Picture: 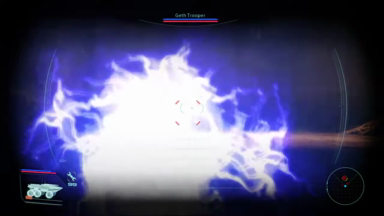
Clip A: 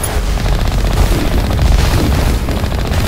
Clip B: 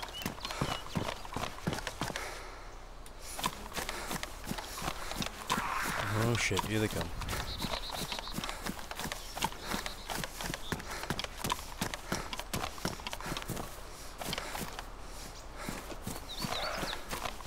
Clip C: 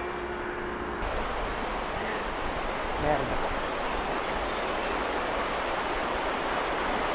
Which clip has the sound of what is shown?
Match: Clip A